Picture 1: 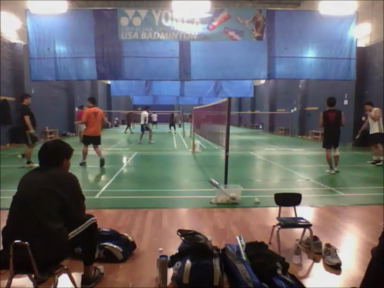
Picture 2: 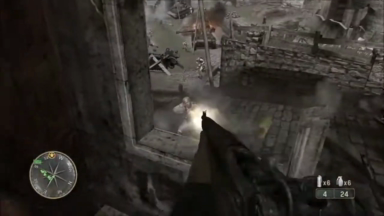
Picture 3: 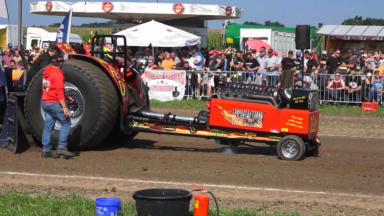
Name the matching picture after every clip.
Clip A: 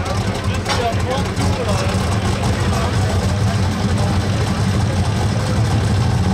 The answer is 3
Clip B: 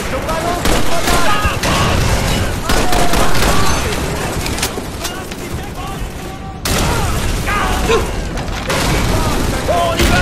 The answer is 2